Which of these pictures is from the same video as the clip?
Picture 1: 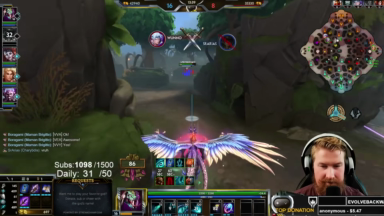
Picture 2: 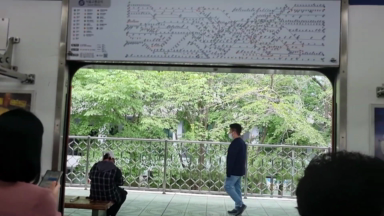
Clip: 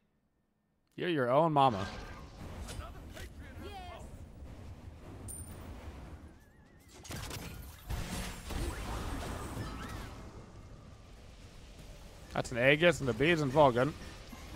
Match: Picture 1